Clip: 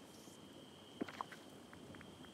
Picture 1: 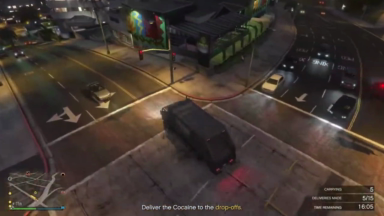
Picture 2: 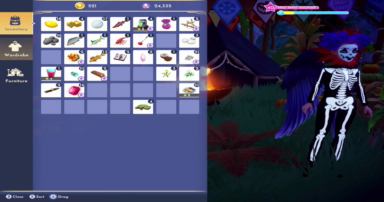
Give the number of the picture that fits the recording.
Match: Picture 2